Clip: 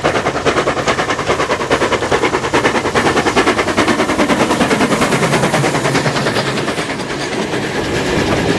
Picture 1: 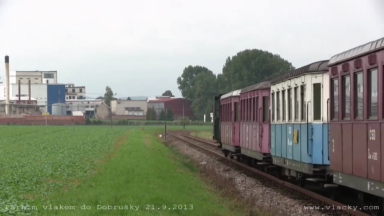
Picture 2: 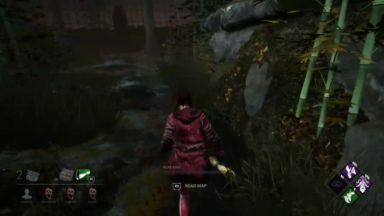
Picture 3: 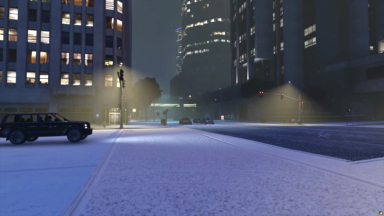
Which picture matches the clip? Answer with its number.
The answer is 1